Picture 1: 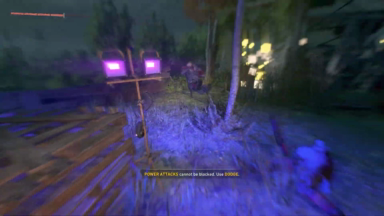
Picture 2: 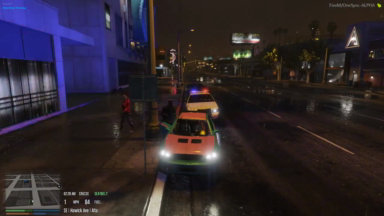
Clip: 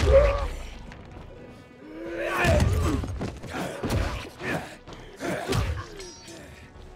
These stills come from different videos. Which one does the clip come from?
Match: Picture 1